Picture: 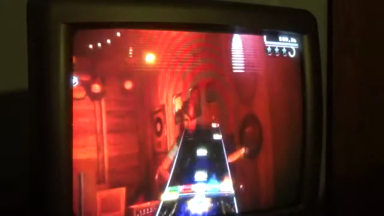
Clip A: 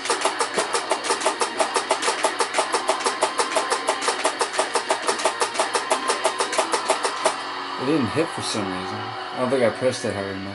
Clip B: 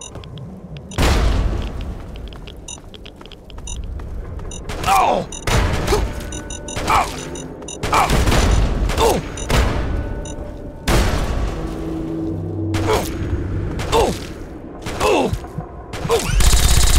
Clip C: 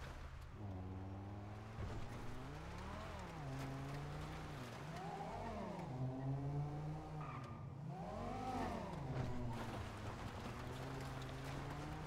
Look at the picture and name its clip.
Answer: A